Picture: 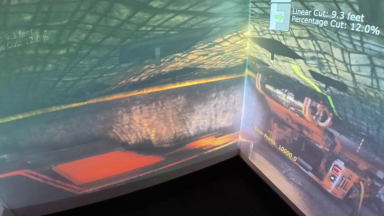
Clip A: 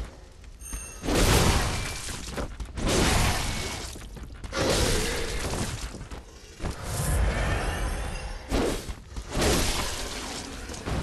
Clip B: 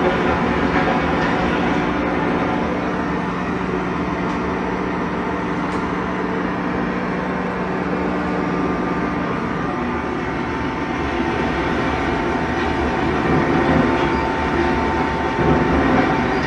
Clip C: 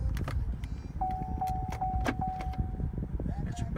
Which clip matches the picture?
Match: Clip B